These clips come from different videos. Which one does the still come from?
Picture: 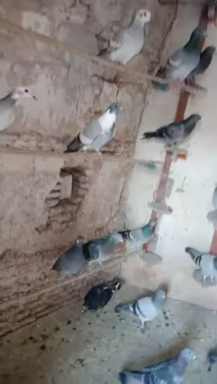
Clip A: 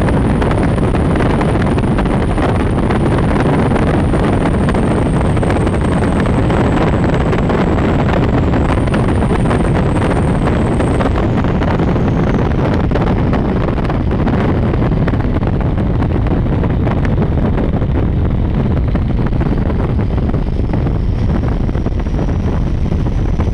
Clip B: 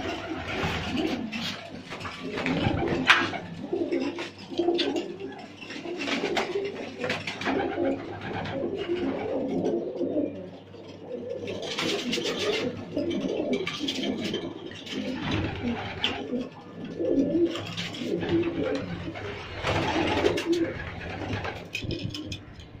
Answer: B